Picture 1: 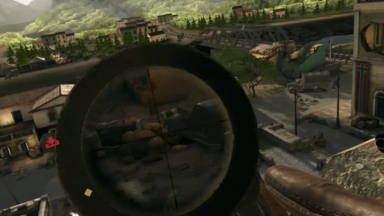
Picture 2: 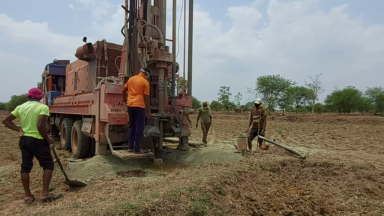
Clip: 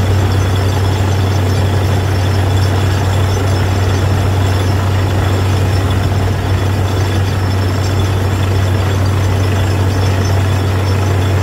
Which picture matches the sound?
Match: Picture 2